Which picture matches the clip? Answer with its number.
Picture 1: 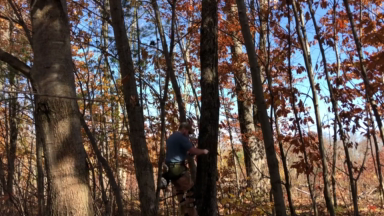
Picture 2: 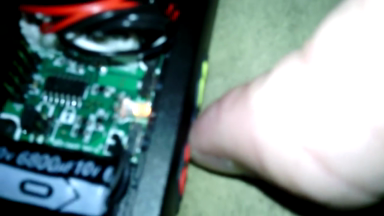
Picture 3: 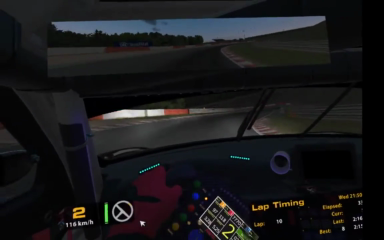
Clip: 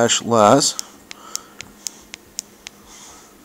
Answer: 2